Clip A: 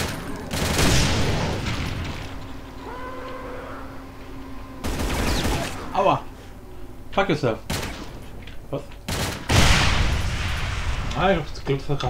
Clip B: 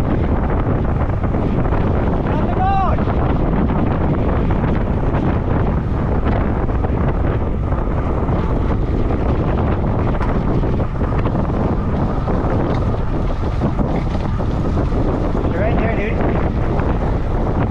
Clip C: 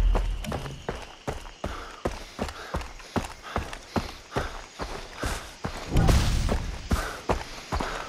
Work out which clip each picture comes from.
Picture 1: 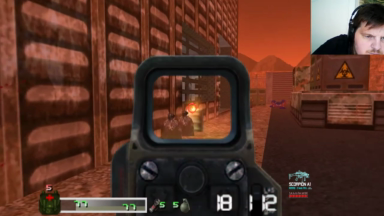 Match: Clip A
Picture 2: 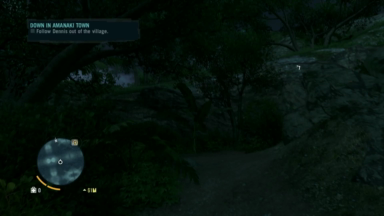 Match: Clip C